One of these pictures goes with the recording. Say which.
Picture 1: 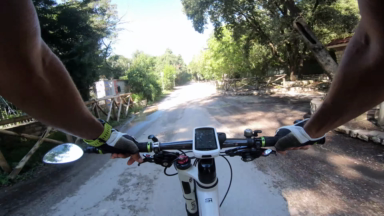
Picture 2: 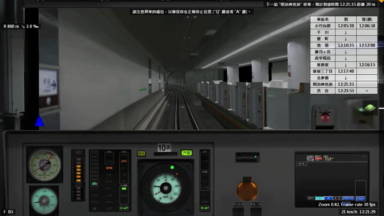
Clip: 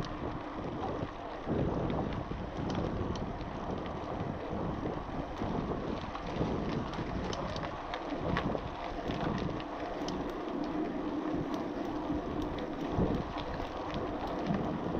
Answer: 1